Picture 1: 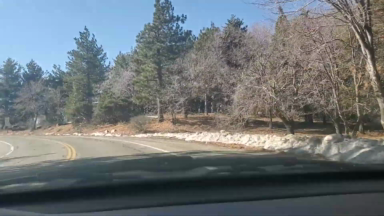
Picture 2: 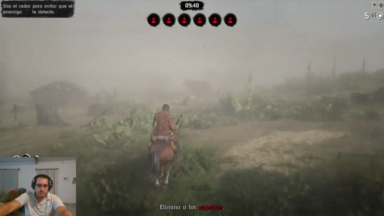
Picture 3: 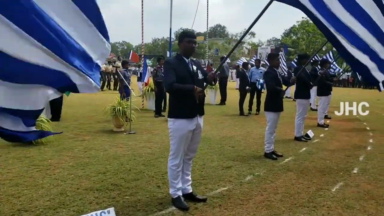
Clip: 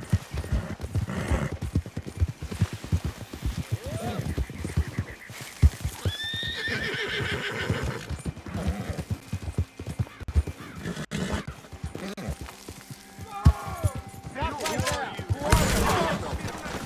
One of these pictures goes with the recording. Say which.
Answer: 2